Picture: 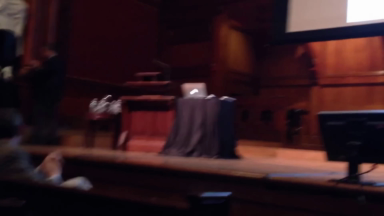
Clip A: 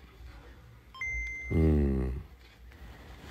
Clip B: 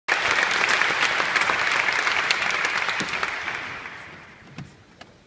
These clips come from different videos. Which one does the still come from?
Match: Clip B